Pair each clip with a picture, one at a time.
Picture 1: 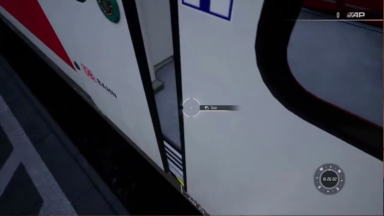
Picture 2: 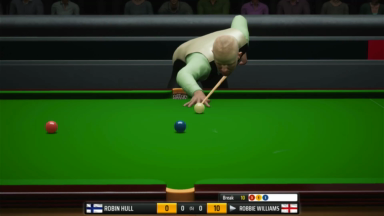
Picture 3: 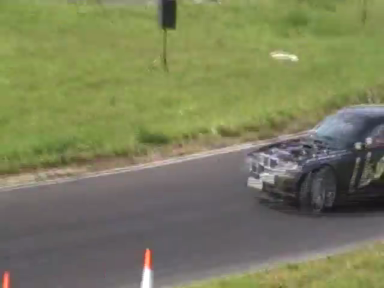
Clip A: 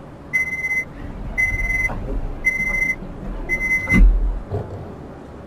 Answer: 1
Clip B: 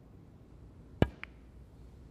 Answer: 2